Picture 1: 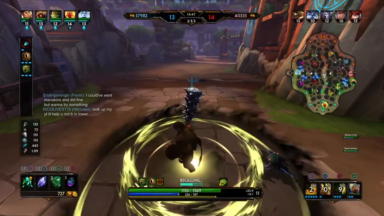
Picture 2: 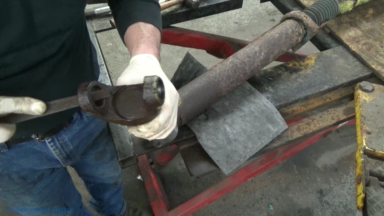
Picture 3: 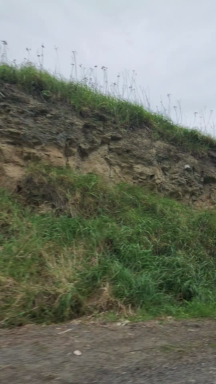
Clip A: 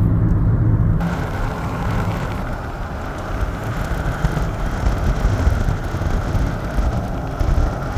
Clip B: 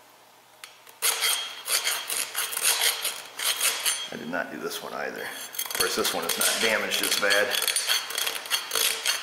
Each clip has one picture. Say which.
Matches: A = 3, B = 2